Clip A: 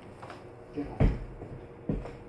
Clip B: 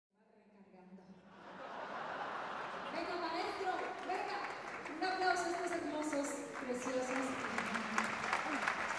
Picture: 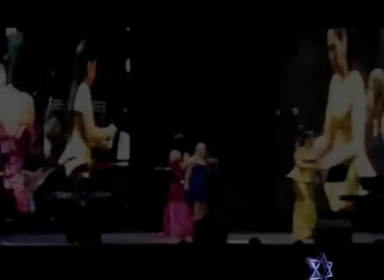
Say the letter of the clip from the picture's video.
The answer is B